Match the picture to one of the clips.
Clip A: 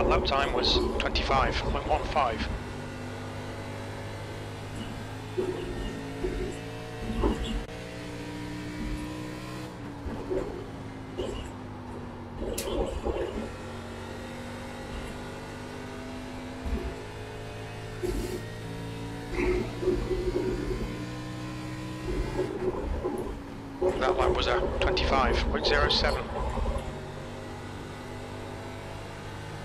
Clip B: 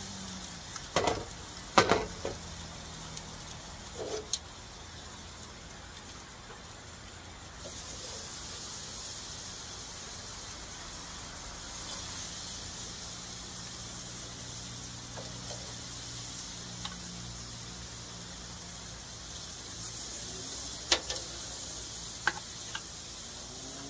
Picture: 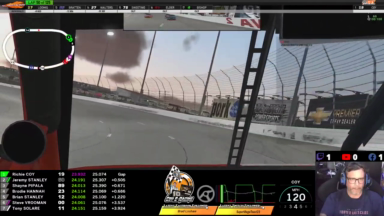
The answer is A